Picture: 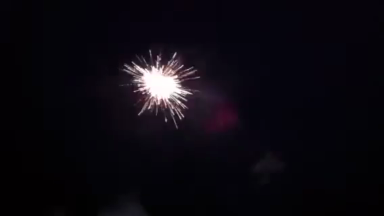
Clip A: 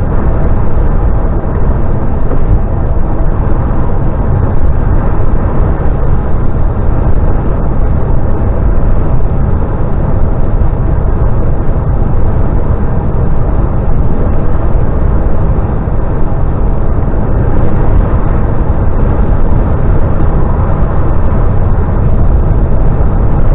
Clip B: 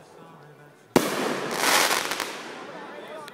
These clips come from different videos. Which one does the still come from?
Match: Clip B